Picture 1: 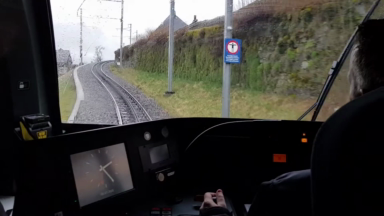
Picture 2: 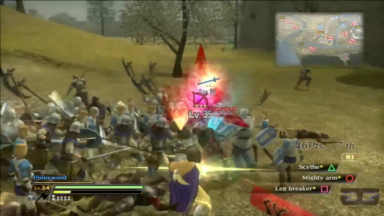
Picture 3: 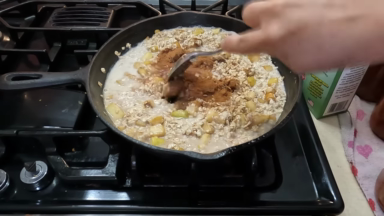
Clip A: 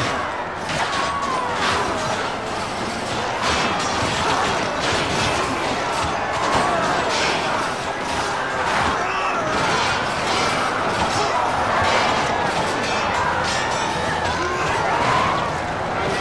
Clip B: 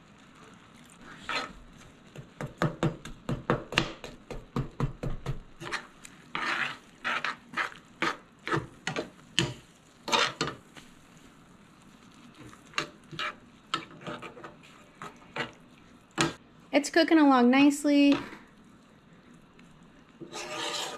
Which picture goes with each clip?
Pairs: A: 2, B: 3